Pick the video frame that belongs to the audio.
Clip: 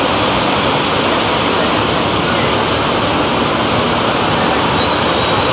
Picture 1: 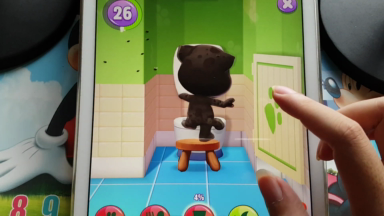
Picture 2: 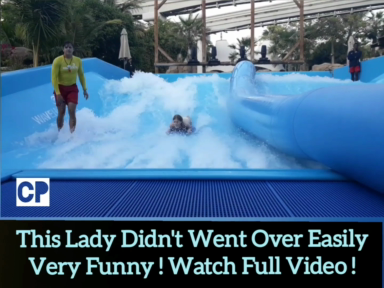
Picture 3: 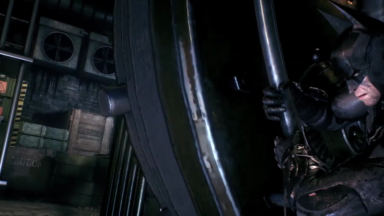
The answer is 2